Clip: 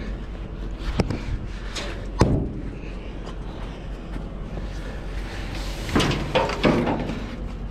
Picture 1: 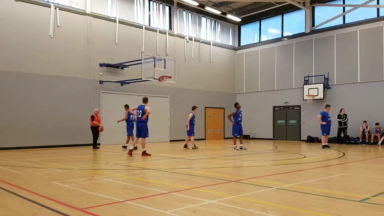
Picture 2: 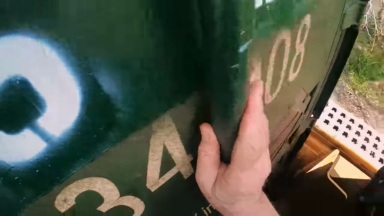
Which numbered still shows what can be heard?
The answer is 2